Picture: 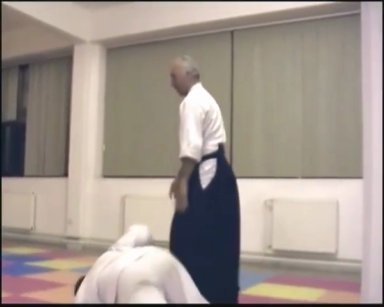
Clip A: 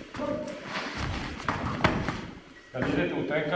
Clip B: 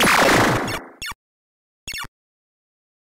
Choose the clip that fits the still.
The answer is A